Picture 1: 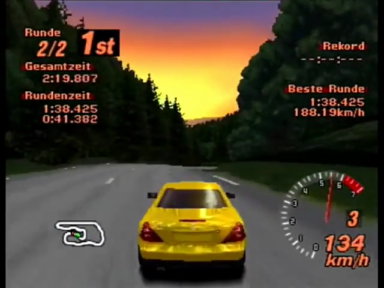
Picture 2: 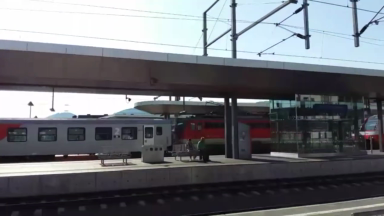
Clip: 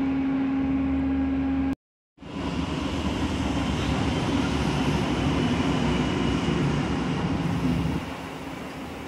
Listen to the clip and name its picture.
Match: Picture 2